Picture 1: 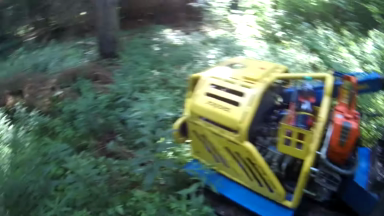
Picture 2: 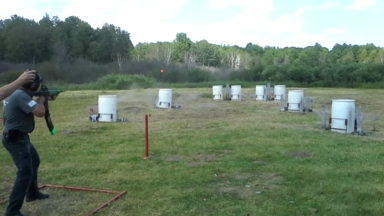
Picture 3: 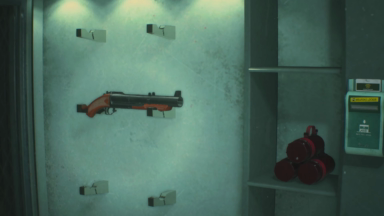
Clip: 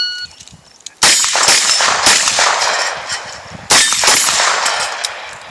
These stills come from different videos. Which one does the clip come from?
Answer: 2